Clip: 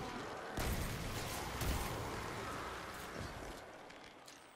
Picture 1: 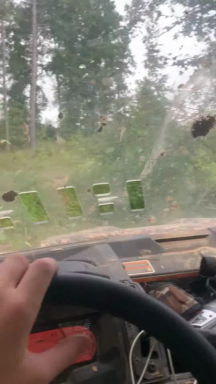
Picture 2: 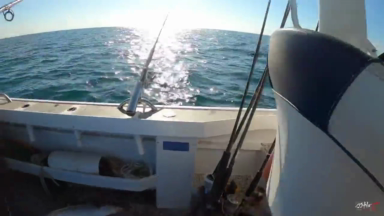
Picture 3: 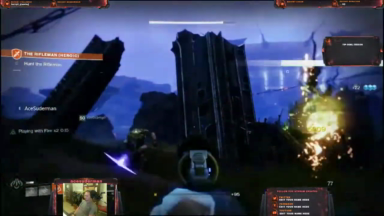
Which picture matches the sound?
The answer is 3